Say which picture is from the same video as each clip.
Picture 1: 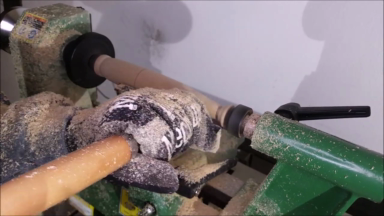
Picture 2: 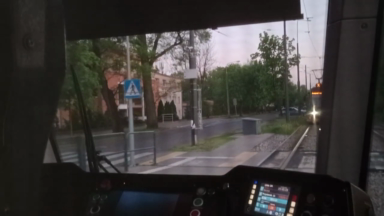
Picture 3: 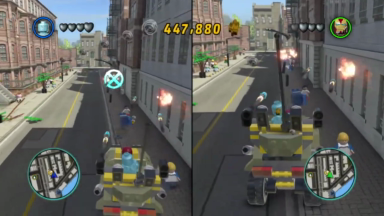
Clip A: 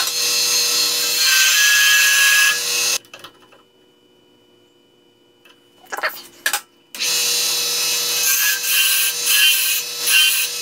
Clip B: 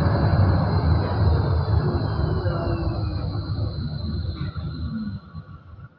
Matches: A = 1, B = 2